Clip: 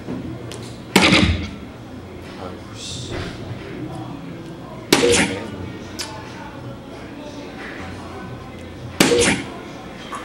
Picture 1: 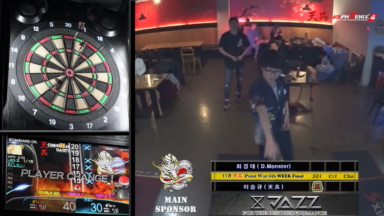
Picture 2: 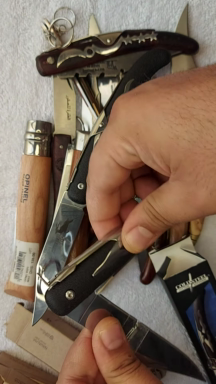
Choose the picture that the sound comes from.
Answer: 1